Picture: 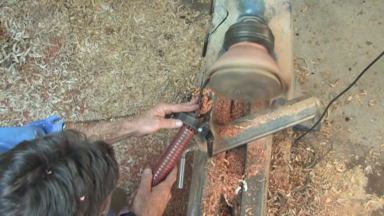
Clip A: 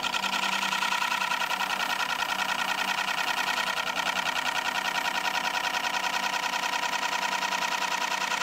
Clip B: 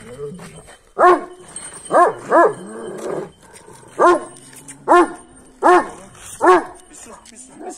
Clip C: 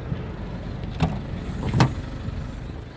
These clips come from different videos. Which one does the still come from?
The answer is A